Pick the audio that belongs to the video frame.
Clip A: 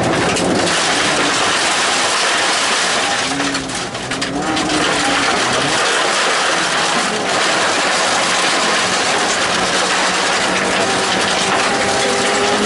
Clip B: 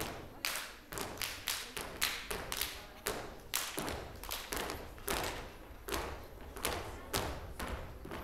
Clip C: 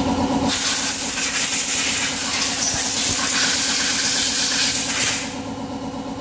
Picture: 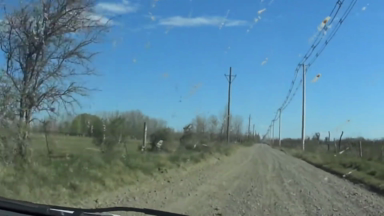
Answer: A